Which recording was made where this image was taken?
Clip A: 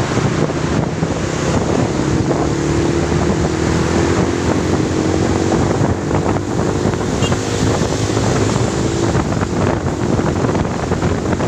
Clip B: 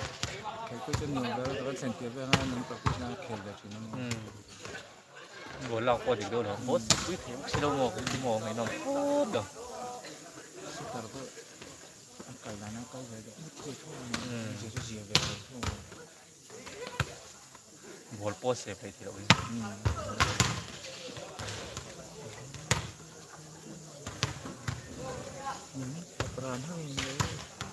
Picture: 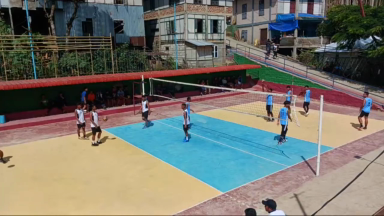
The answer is B